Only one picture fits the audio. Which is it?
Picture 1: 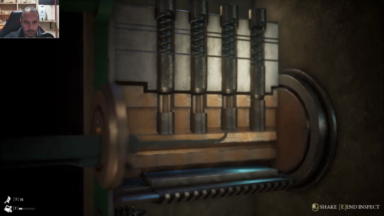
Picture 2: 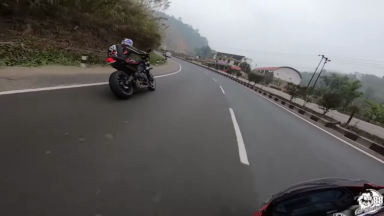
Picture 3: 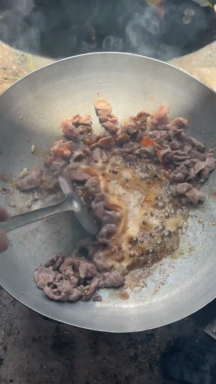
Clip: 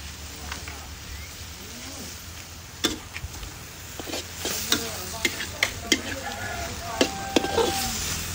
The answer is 3